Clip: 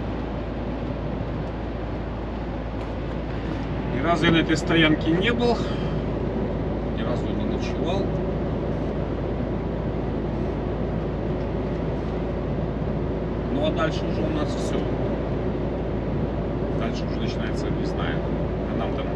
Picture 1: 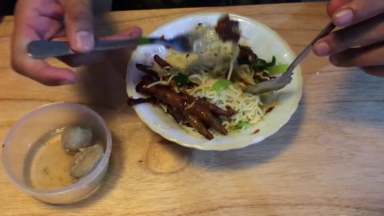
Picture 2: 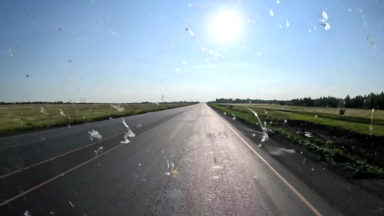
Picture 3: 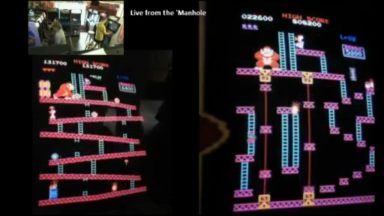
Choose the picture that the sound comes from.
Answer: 2